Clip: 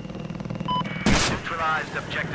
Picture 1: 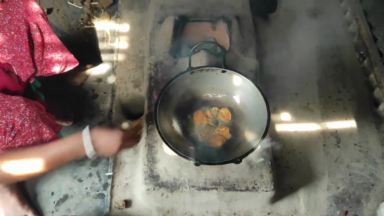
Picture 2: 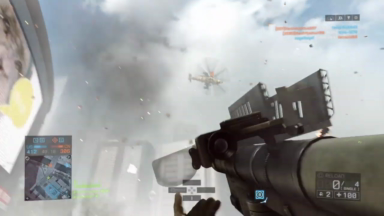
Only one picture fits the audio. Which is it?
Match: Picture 2